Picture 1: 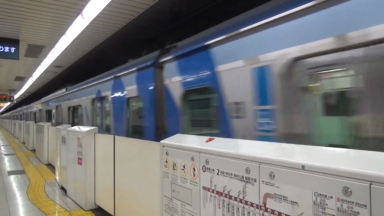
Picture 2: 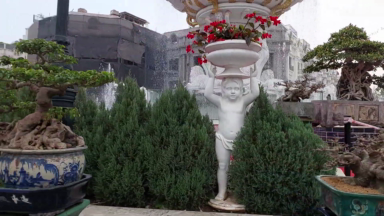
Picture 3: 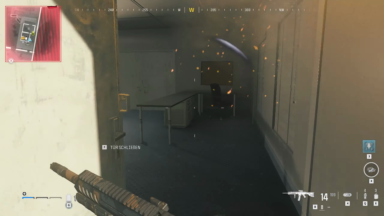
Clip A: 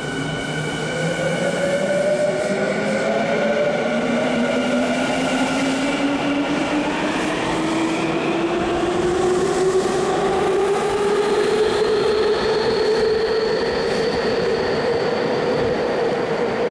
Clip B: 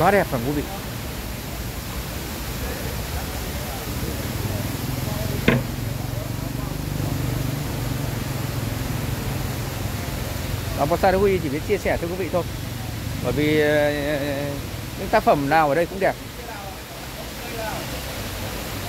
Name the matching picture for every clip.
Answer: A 1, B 2